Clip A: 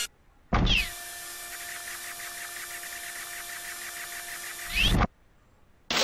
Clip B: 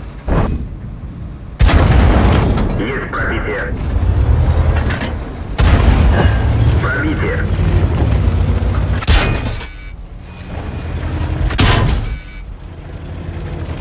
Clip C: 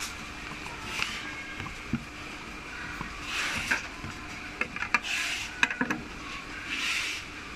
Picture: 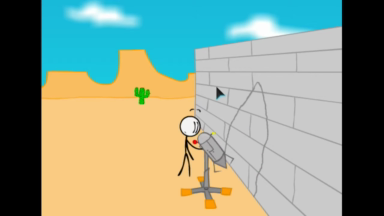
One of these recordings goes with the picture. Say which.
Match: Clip A